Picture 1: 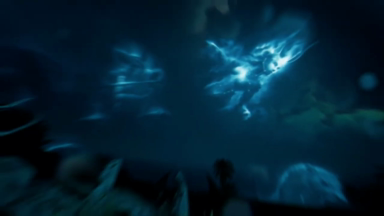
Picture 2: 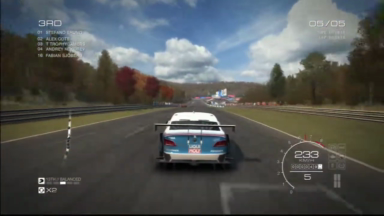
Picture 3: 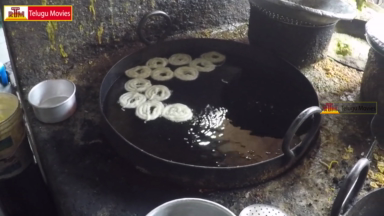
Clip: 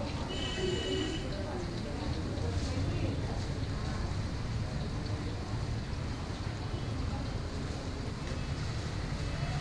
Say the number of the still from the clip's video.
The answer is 3